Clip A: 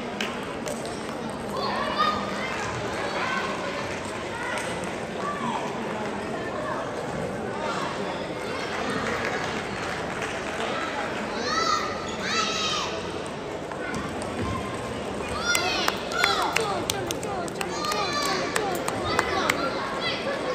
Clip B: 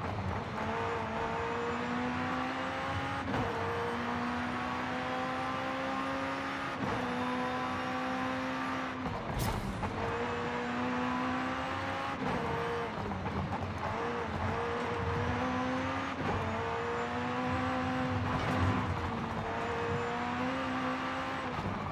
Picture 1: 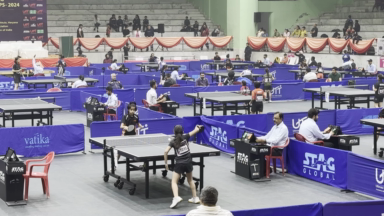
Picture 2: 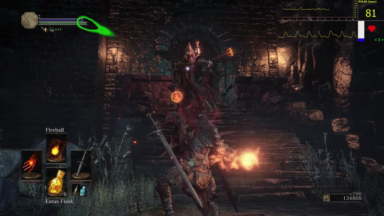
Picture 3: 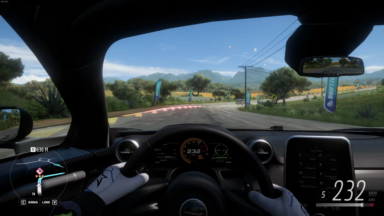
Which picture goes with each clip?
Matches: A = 1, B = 3